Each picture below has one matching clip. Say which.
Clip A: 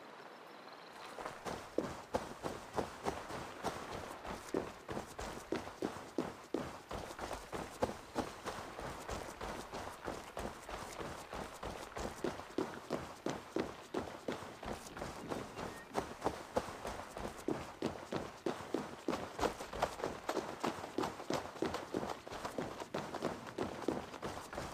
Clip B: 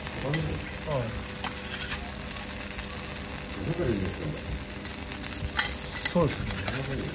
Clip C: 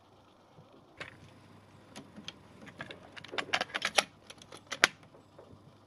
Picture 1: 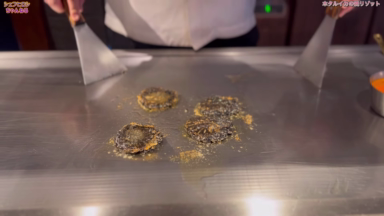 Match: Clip B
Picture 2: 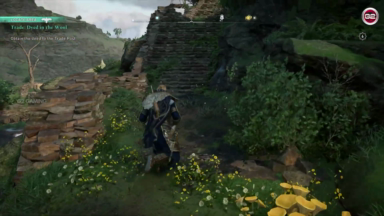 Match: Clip A